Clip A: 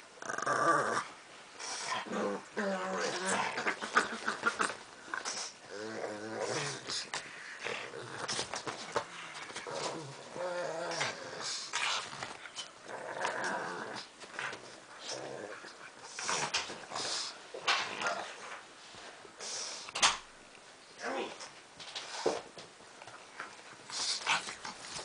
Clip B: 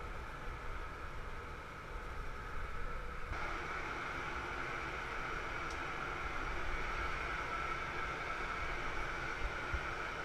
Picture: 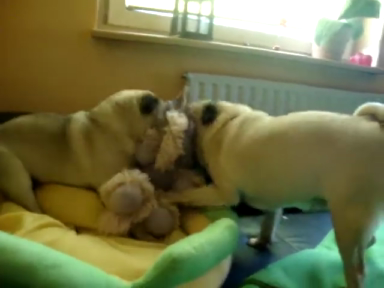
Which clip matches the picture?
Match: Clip A